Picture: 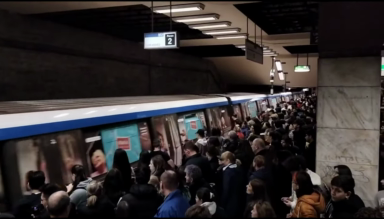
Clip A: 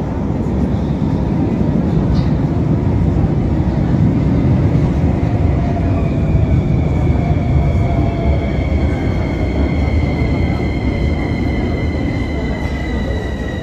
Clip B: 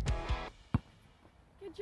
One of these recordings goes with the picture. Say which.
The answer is A